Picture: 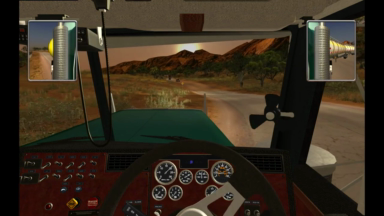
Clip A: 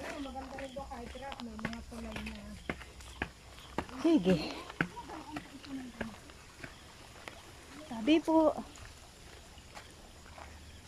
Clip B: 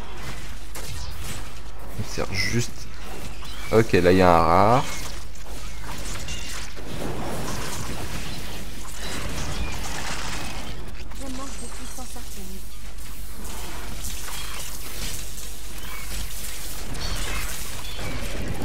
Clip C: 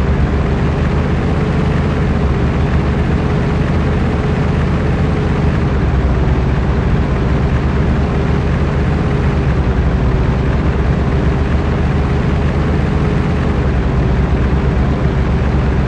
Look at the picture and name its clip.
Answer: C